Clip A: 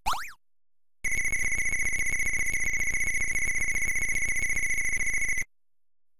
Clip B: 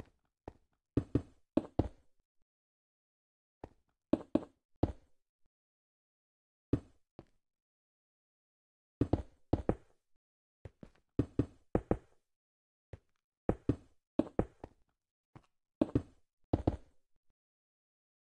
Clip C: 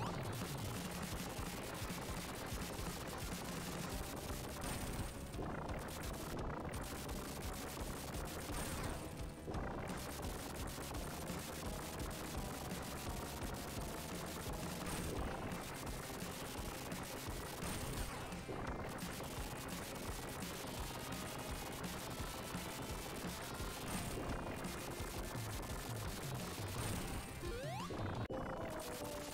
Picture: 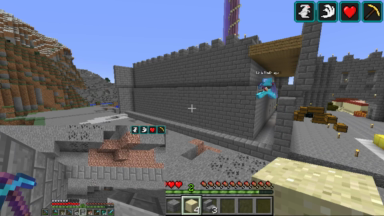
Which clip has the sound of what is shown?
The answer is B